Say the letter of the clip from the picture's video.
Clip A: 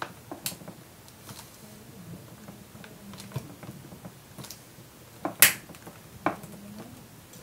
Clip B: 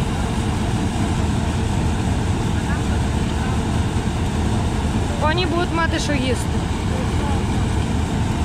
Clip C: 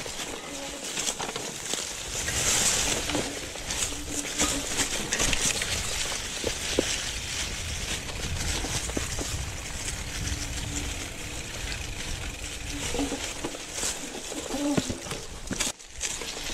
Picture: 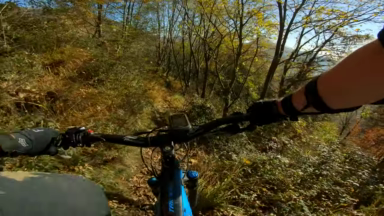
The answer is C